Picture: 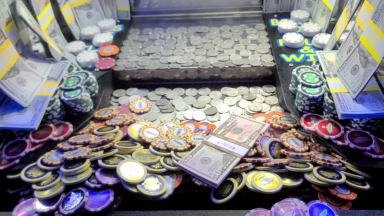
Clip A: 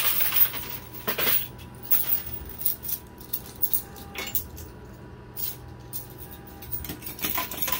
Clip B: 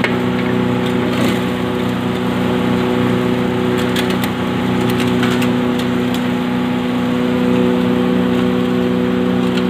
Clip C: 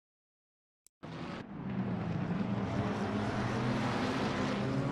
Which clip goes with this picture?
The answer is A